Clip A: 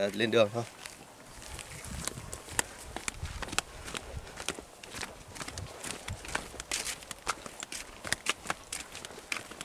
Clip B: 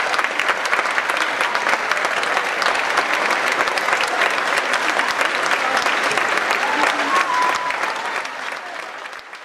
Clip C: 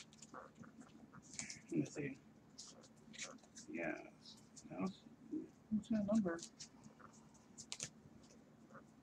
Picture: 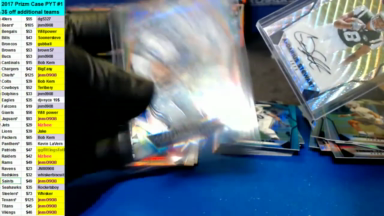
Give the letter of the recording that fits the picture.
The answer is C